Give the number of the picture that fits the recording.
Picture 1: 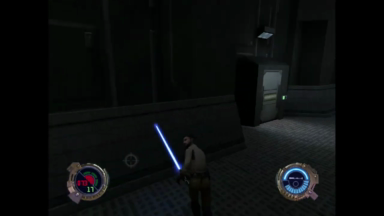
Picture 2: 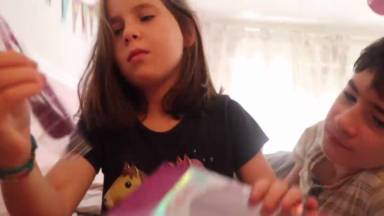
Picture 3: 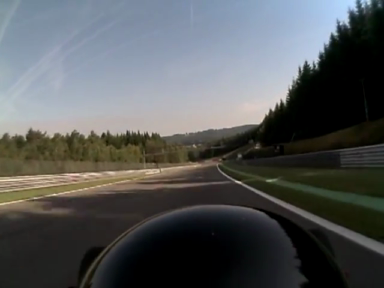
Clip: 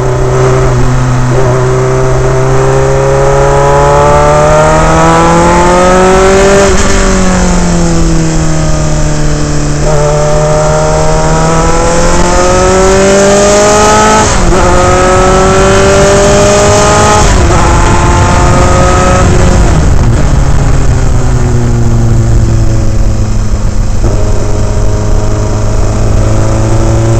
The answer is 3